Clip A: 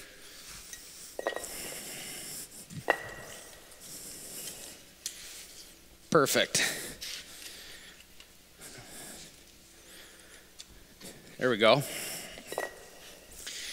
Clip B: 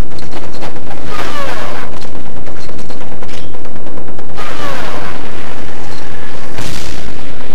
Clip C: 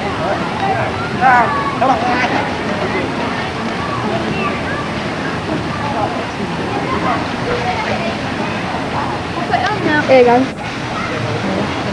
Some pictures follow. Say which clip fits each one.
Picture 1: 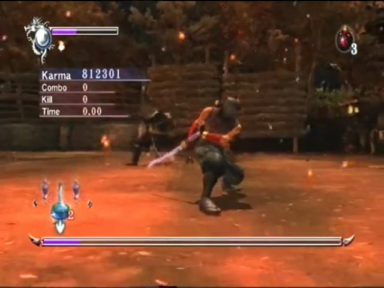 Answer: B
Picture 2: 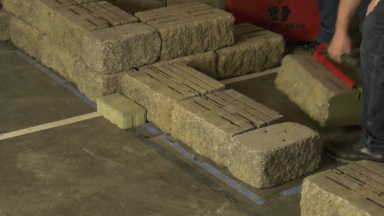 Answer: A